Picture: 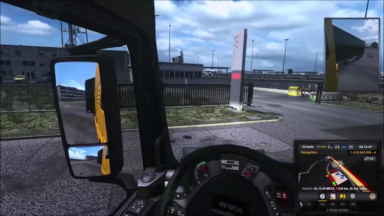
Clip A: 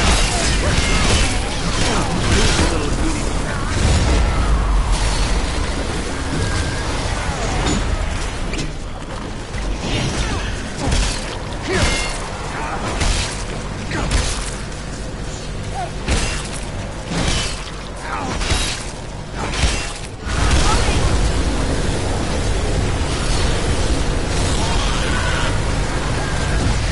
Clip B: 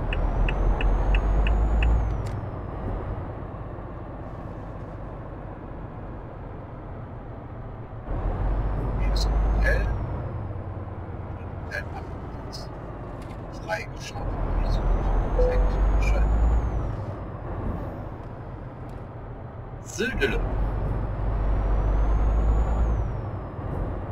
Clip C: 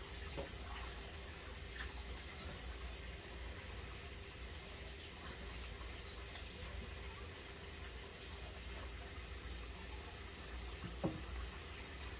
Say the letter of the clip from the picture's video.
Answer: B